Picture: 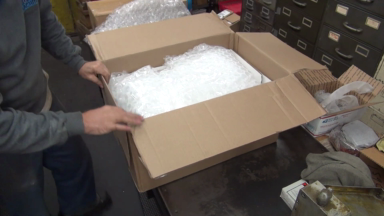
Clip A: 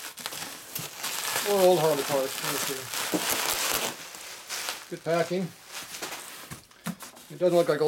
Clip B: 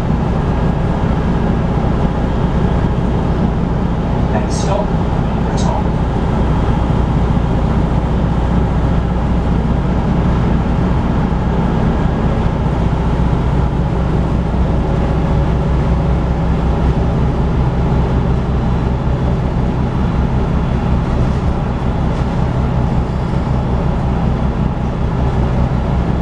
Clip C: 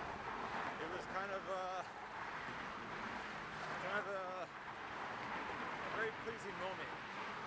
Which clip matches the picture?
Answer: A